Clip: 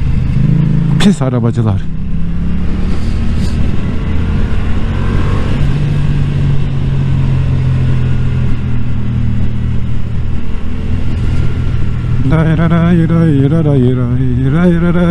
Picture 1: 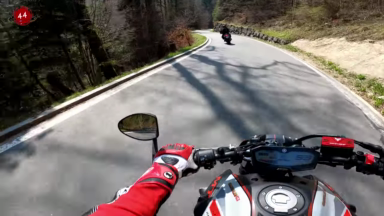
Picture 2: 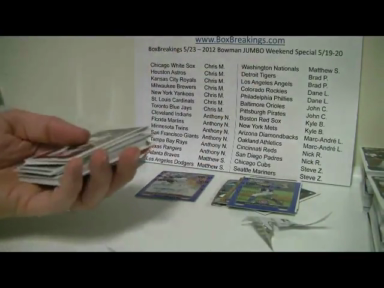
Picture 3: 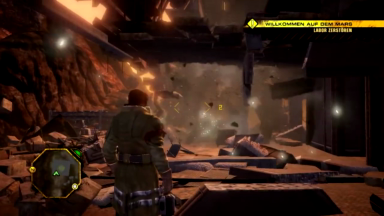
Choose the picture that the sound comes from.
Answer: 1